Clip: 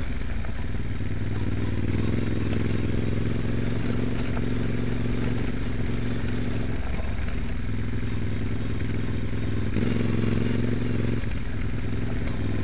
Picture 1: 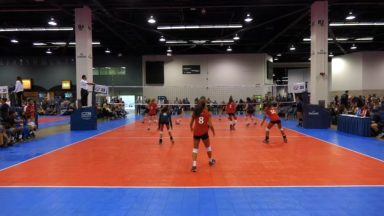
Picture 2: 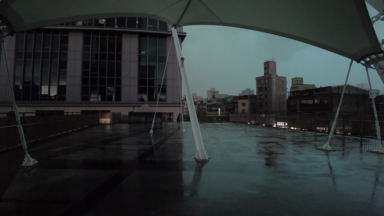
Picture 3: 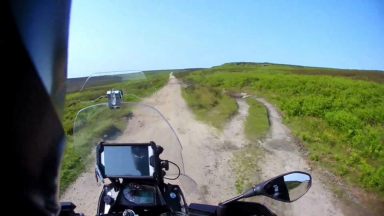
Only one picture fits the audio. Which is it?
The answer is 3